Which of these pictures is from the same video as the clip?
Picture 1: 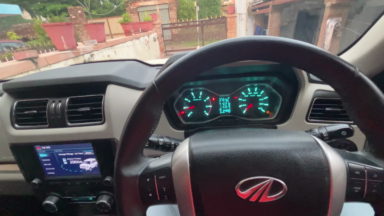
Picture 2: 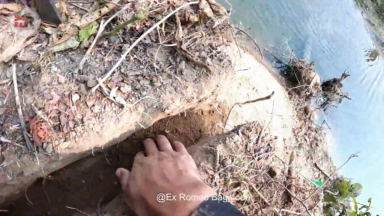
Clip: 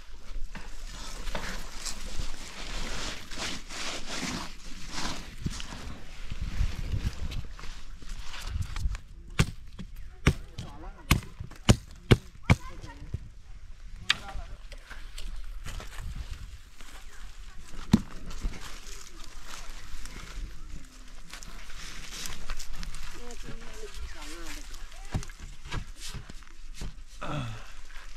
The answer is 2